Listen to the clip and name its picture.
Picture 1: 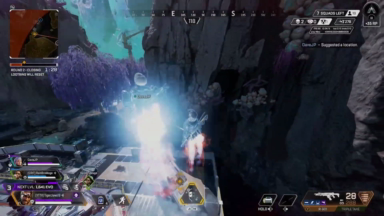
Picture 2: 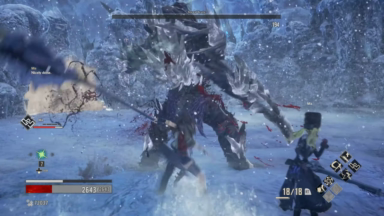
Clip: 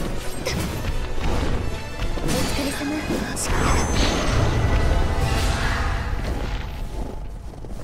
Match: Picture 2